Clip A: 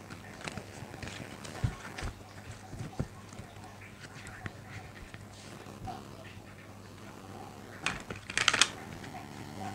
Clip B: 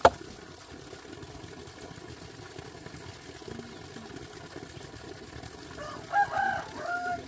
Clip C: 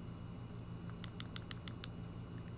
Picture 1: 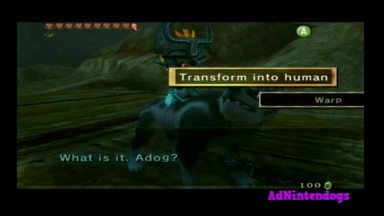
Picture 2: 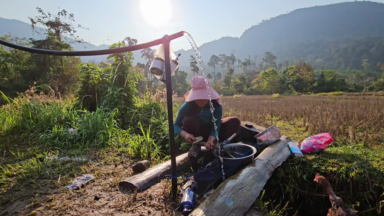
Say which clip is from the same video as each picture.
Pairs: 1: C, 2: B